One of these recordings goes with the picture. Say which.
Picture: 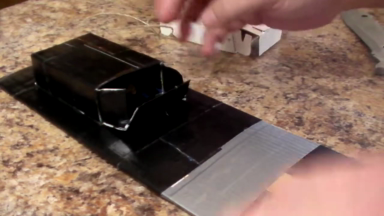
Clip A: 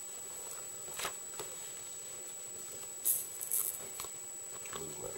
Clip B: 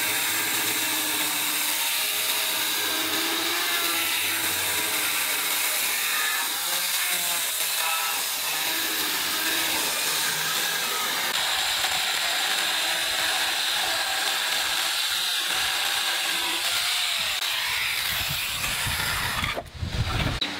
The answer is A